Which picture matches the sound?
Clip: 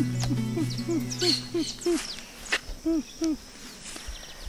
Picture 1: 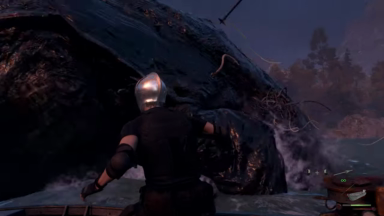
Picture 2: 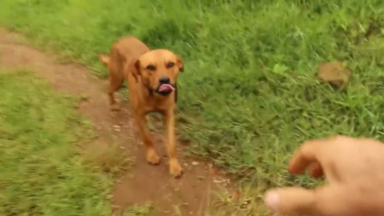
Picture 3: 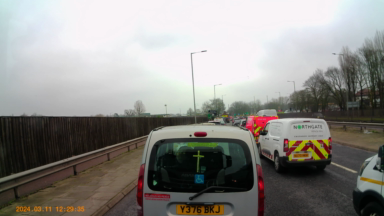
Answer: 2